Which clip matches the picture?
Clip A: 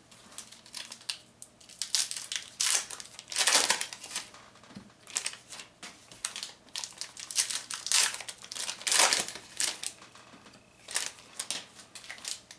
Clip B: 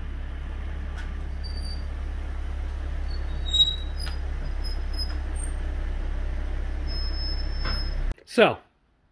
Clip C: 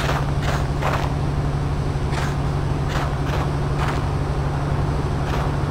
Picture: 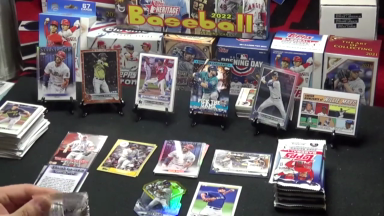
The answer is A